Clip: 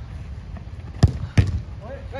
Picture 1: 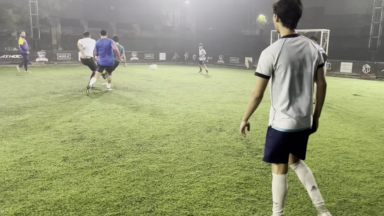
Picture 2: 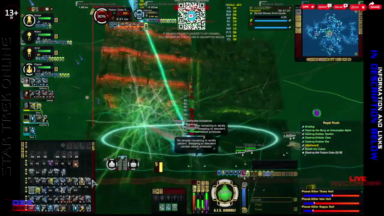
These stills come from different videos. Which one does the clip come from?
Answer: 1